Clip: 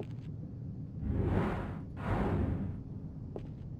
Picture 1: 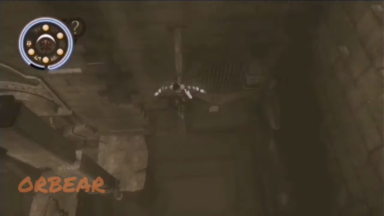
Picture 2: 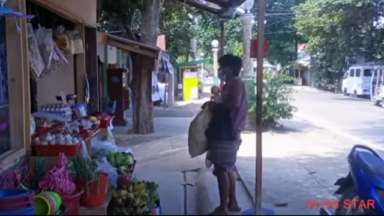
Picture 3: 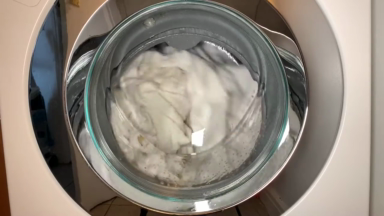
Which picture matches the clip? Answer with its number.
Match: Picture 1